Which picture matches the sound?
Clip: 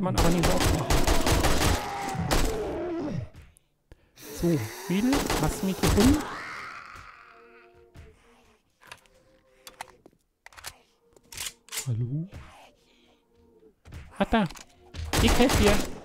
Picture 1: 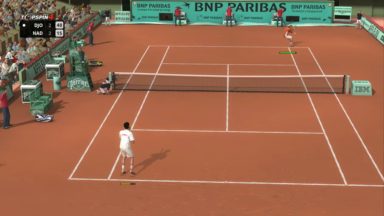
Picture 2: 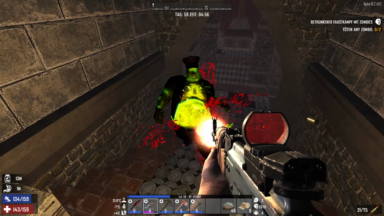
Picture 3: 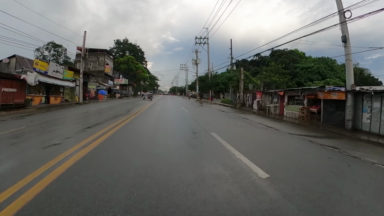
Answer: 2